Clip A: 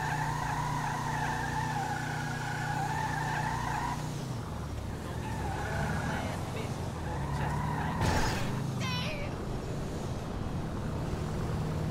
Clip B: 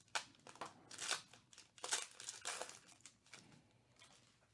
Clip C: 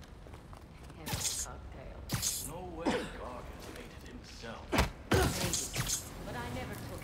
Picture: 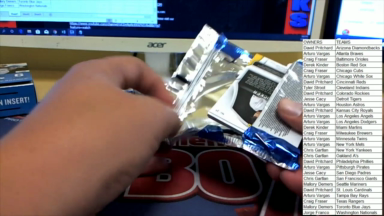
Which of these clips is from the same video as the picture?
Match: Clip B